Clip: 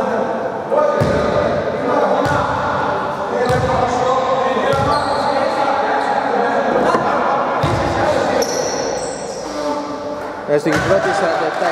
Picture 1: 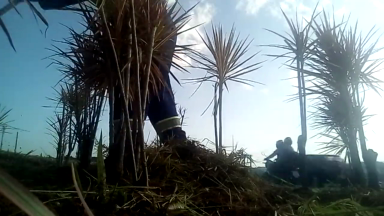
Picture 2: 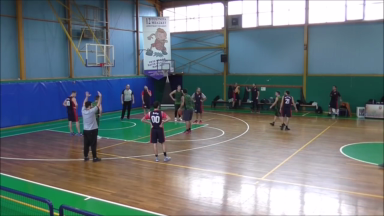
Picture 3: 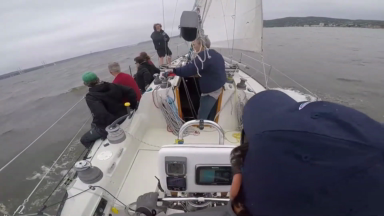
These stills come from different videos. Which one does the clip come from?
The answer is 2